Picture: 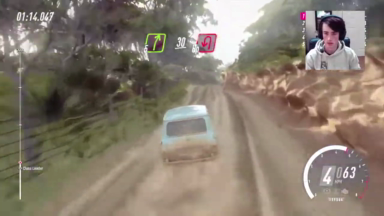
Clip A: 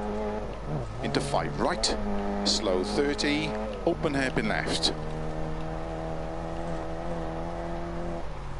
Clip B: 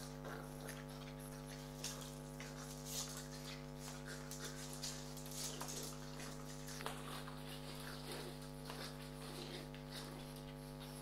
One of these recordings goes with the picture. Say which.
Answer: A